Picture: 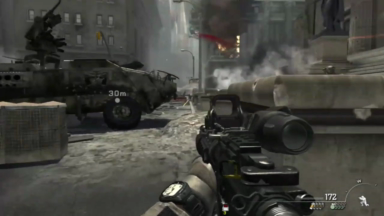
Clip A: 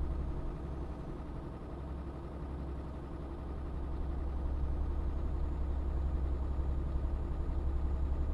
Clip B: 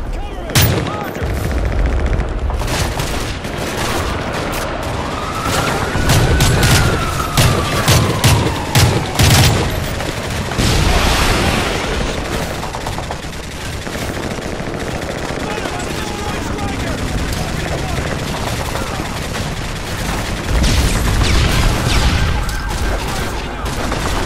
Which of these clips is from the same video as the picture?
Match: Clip B